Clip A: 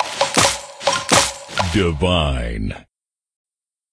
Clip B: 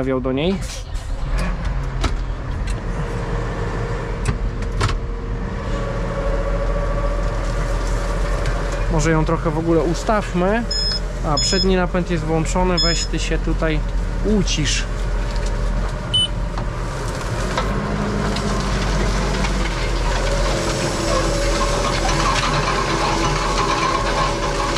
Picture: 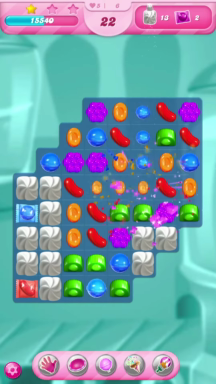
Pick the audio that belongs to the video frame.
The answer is A